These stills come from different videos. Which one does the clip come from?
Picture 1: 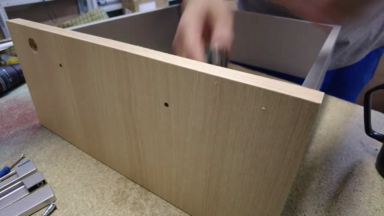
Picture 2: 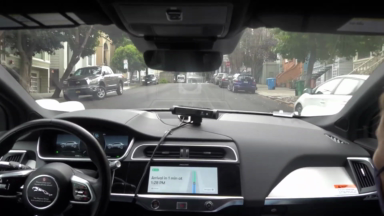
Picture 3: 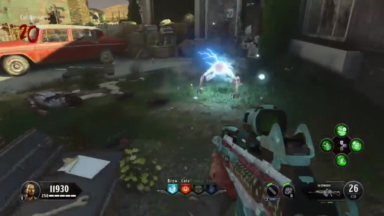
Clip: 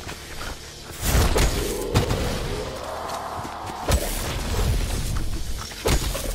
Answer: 3